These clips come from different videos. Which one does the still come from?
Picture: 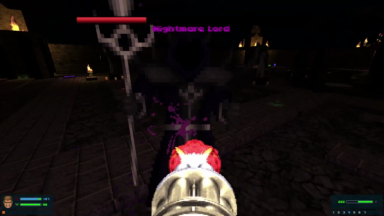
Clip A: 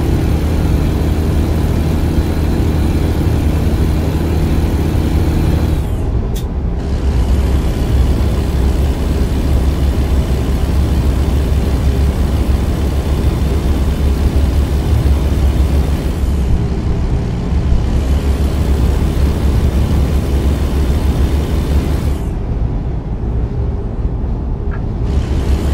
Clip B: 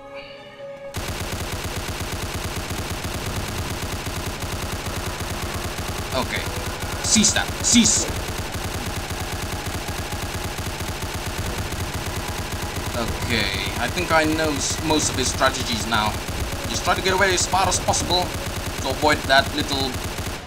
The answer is B